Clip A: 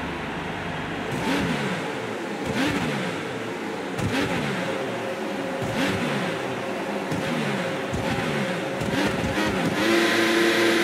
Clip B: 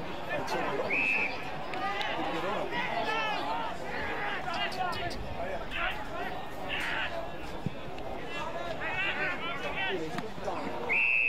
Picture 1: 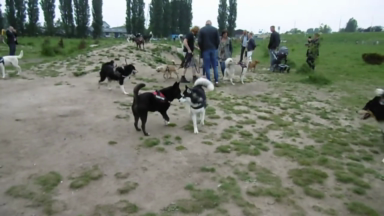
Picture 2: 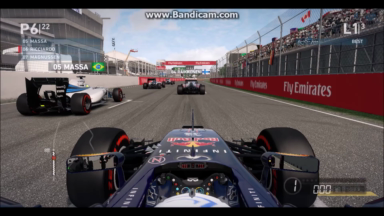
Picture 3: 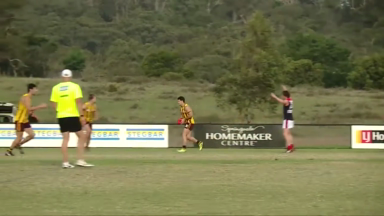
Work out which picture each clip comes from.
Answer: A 2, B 3